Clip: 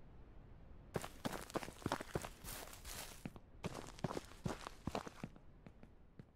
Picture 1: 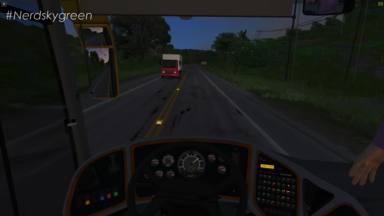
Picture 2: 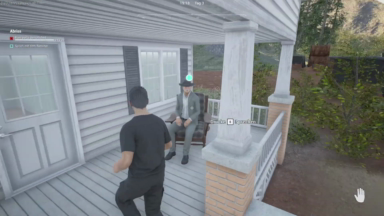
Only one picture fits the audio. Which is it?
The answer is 2